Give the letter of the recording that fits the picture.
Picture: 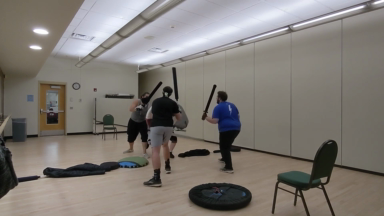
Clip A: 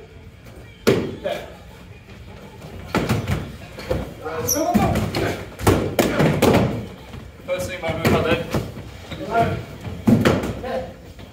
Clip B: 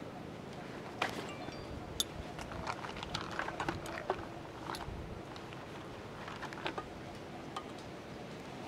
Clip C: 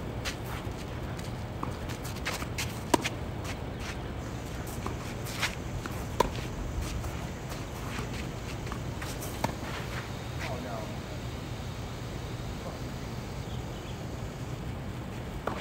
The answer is A